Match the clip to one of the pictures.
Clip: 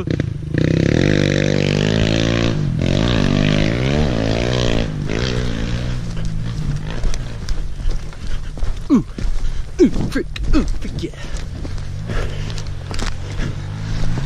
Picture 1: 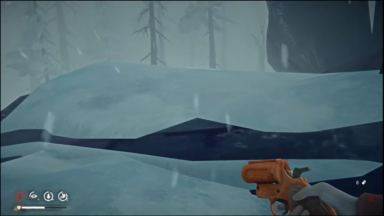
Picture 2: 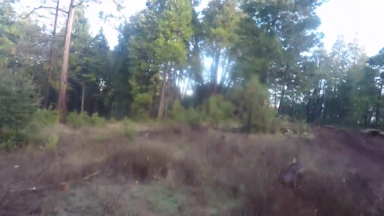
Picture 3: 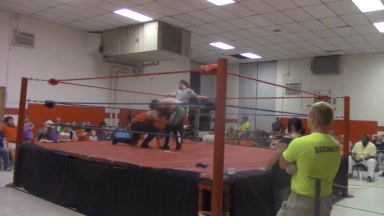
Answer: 2